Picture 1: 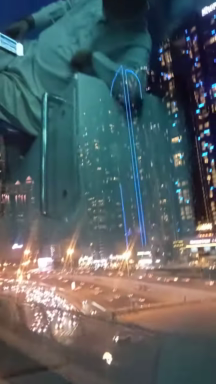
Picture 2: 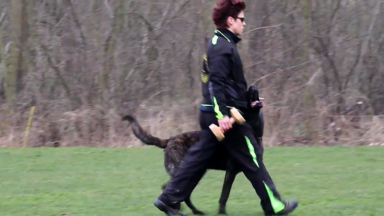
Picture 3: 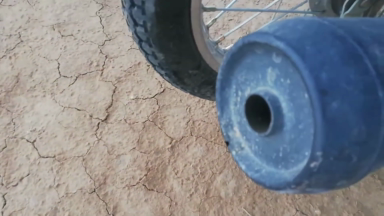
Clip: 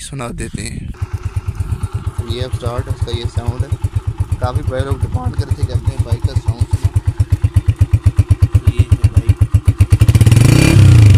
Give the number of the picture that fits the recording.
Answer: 3